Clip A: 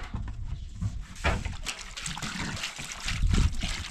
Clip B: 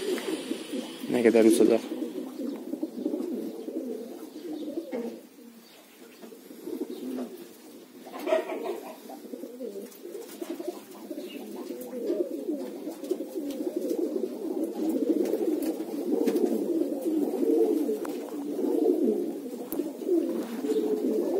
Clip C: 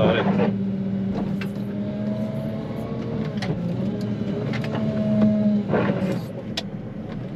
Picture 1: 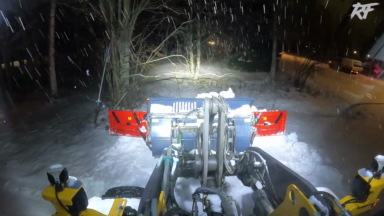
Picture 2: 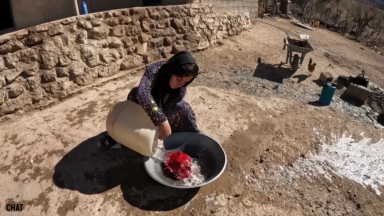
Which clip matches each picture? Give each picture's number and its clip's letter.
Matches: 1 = C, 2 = A